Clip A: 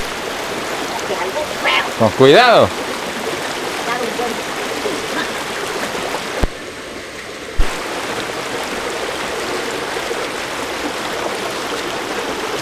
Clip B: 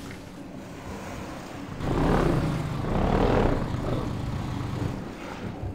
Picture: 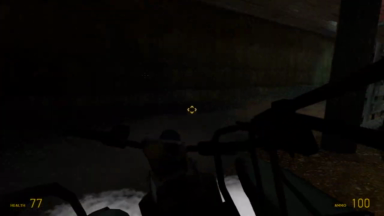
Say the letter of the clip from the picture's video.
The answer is B